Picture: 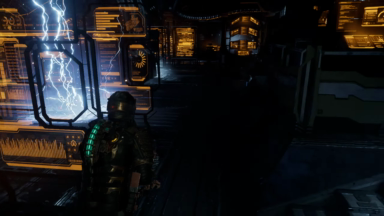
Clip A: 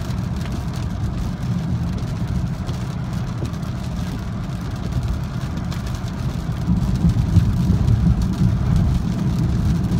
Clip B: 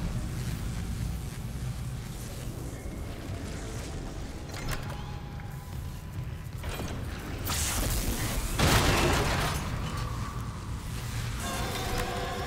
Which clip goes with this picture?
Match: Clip B